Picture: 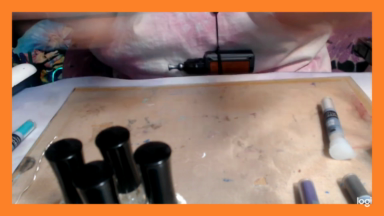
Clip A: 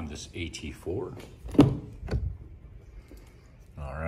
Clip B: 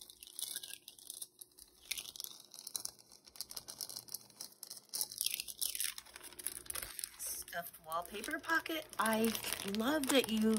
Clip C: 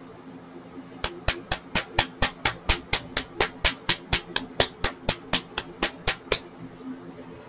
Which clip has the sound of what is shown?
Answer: C